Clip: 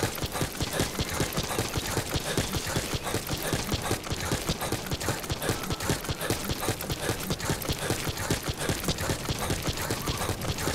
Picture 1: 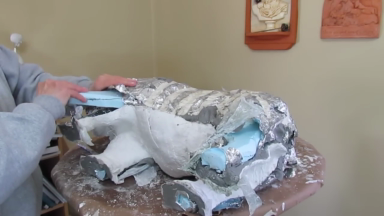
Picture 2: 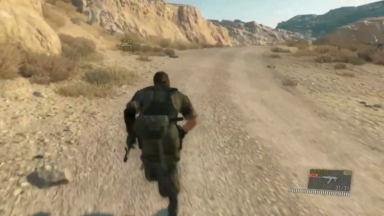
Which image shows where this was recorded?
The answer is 2